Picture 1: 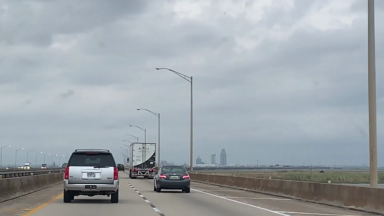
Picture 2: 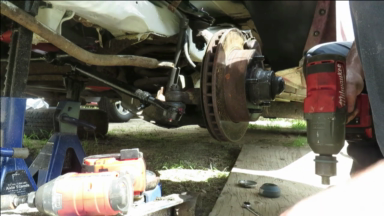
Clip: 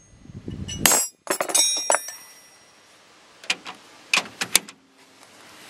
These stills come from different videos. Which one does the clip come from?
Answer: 2